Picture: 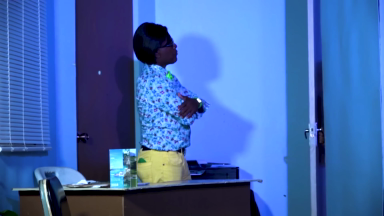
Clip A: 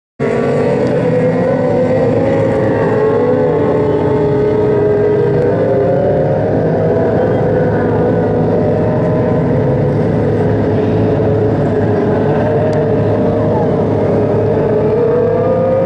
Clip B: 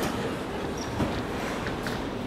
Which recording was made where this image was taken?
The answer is B